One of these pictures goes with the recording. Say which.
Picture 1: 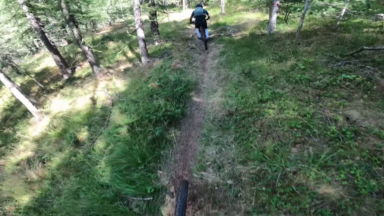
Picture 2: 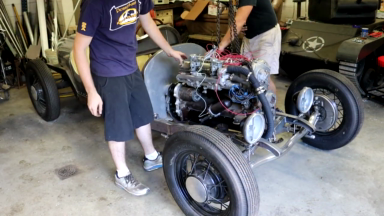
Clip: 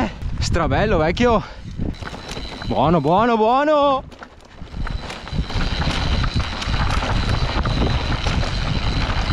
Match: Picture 1